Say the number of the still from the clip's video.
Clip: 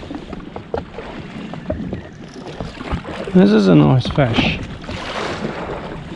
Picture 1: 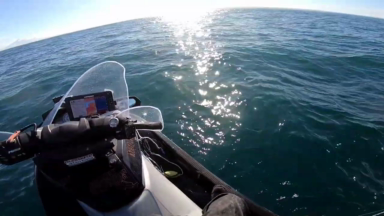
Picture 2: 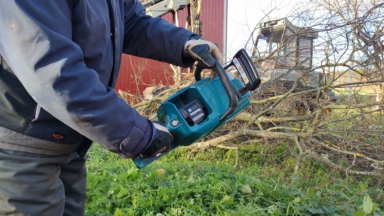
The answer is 1